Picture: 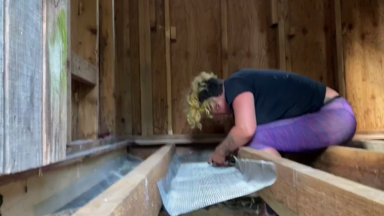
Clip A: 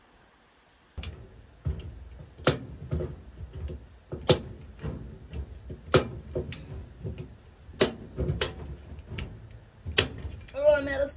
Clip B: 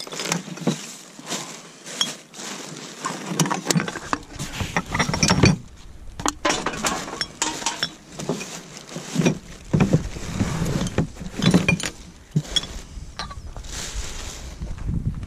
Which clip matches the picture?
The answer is A